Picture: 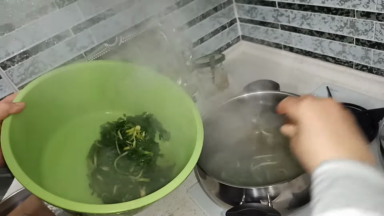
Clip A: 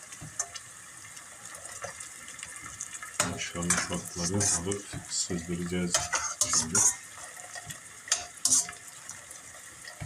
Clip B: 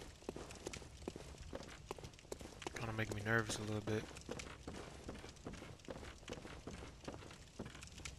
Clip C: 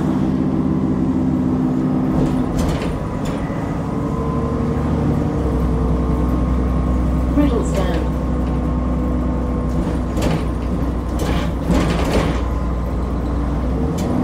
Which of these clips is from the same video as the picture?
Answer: A